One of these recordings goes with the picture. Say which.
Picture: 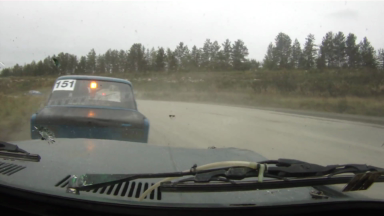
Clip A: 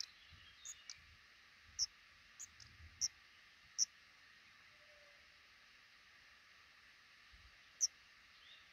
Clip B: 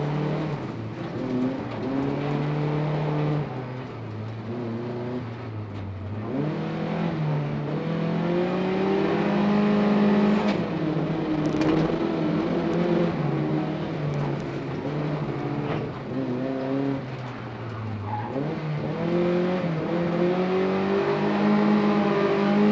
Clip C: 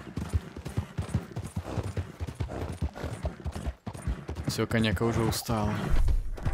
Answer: B